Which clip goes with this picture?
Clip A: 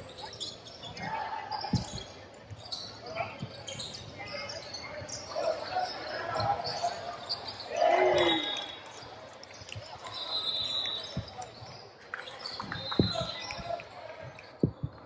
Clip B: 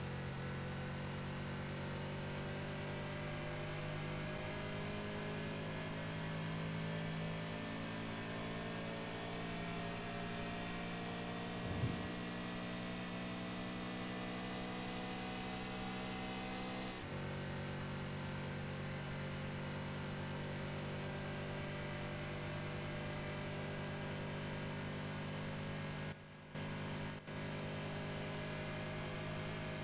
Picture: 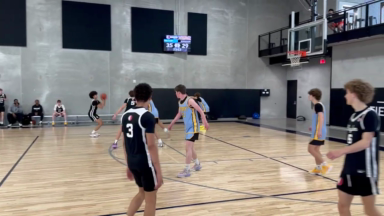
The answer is A